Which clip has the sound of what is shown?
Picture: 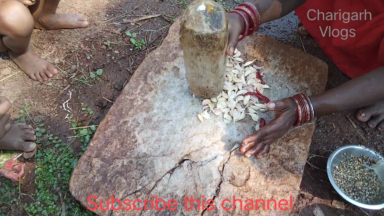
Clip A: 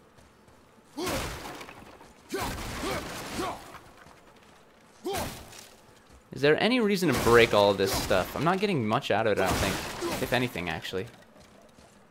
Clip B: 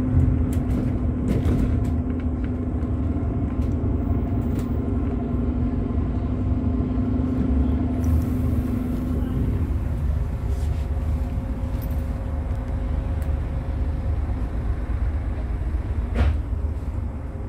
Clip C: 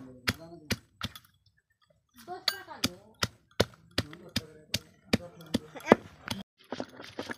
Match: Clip C